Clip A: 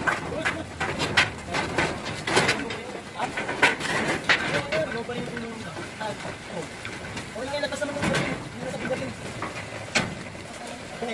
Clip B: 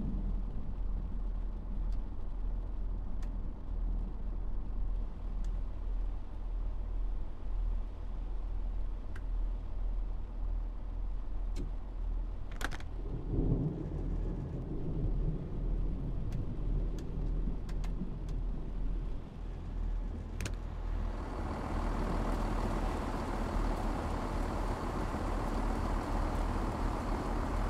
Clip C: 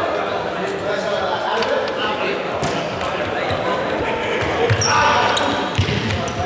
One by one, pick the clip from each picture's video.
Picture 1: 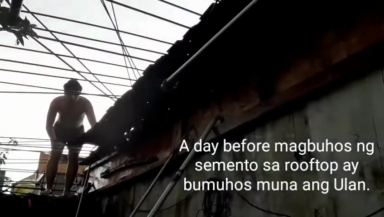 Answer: A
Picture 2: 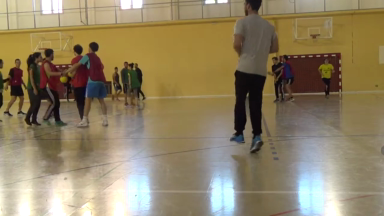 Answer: C